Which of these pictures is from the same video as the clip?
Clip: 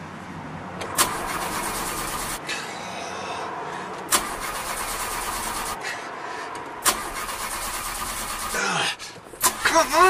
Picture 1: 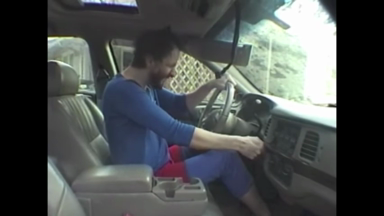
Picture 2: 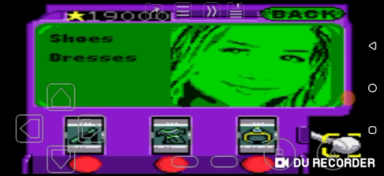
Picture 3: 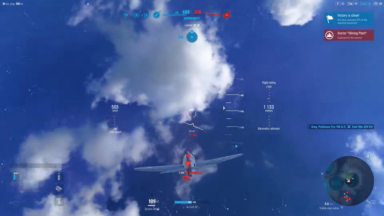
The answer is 1